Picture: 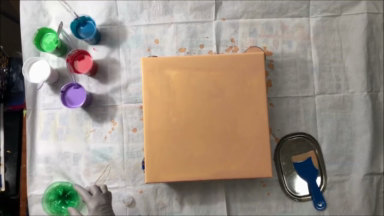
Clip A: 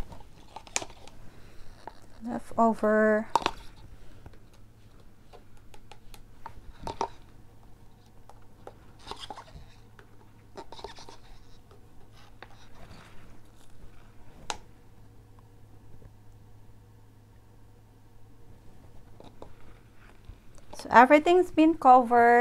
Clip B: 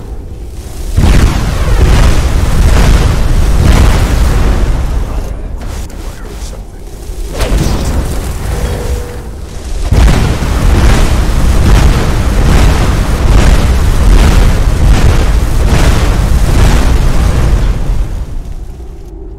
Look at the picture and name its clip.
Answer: A